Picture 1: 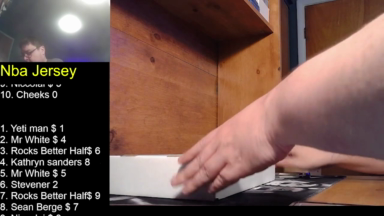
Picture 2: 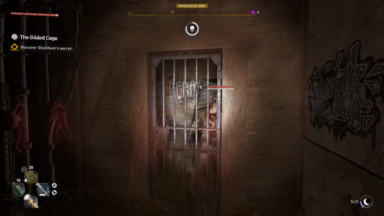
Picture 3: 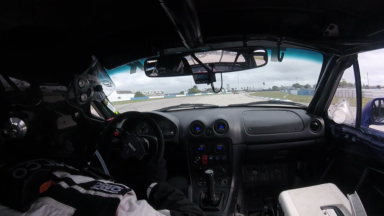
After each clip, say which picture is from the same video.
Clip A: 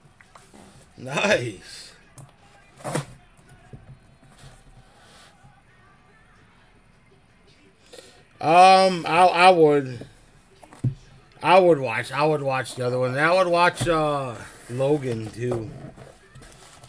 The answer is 1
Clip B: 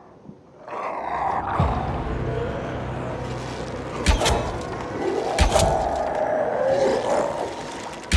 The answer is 2